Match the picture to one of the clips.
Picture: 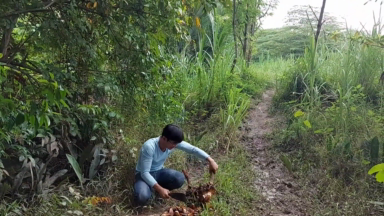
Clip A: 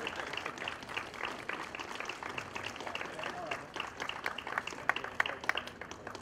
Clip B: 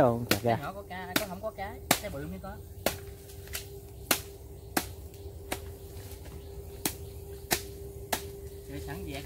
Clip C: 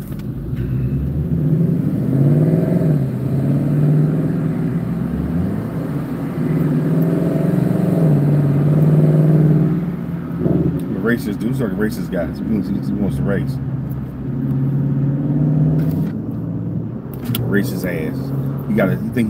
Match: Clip B